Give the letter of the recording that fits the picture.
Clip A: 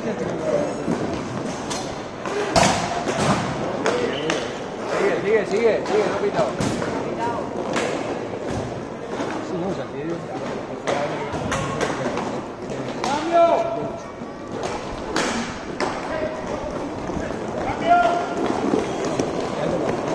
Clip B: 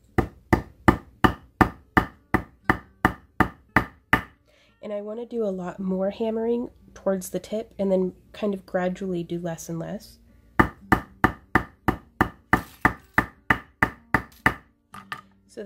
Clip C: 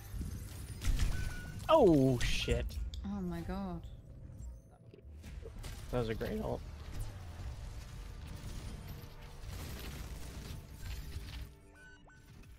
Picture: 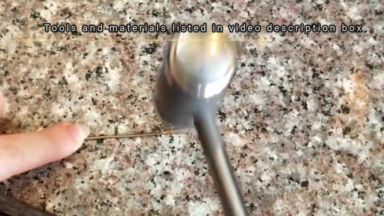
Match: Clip B